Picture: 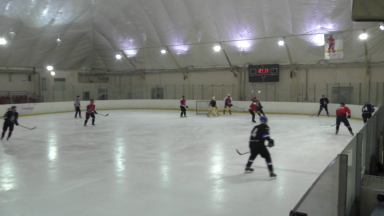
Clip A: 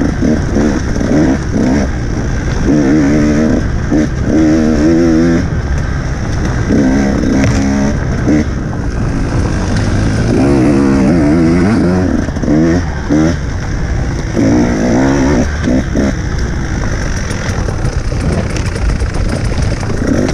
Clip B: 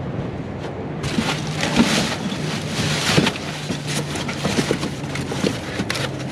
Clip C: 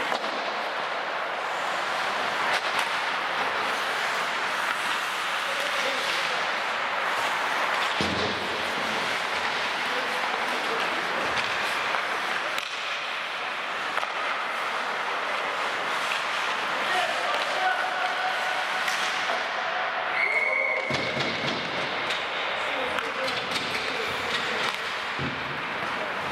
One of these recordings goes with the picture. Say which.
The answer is C